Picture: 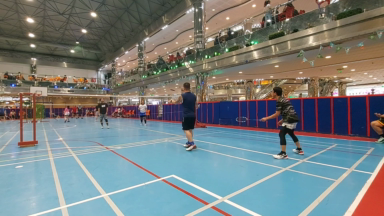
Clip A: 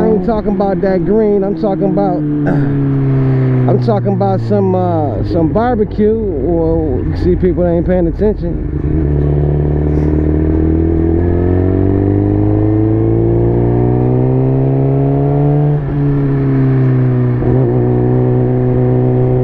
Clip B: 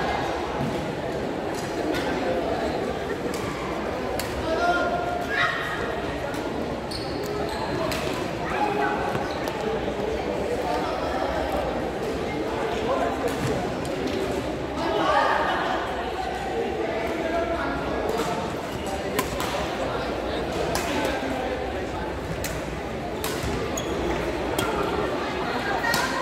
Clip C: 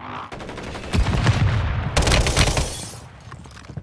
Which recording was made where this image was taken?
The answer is B